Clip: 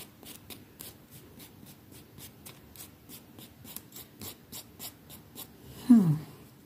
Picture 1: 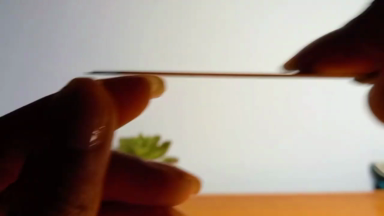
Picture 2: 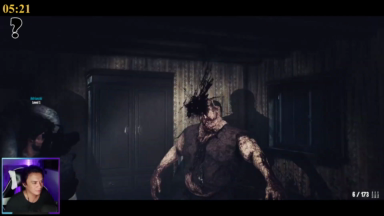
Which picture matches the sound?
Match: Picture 1